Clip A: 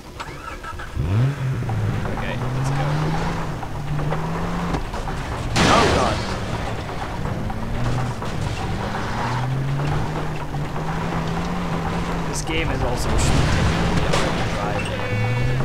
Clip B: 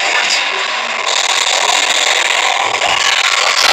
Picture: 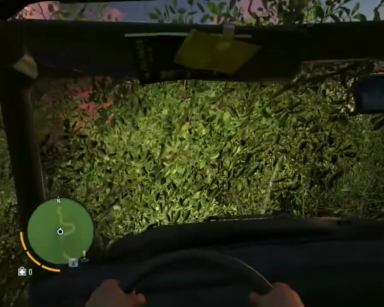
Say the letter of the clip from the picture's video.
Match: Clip A